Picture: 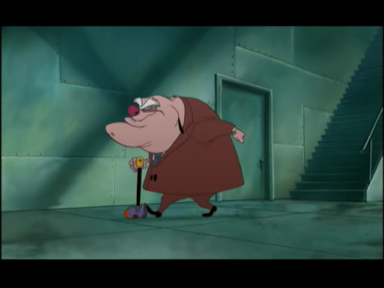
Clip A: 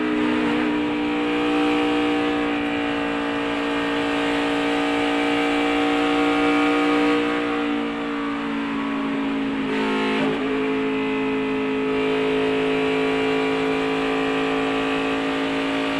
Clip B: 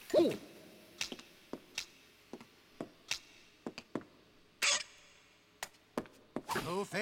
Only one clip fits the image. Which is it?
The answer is B